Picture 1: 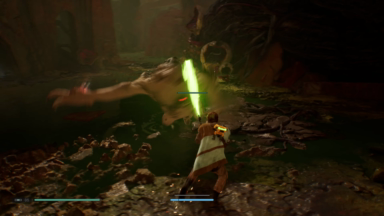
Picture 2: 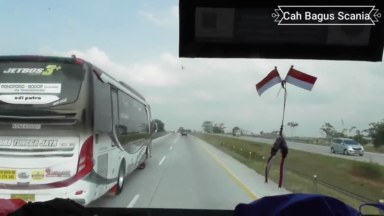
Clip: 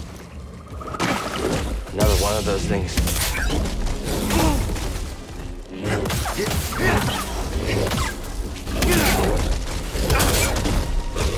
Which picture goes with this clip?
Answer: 1